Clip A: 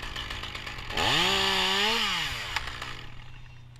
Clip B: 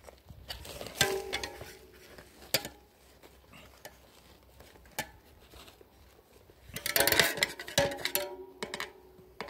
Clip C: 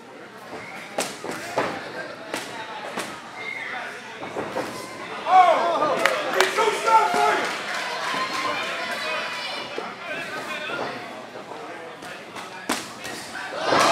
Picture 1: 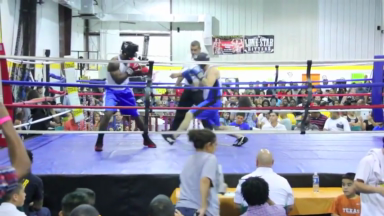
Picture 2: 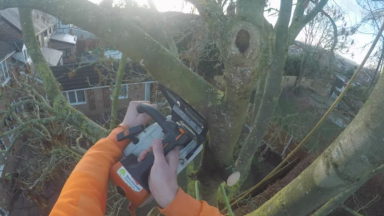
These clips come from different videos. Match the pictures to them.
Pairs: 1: C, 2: A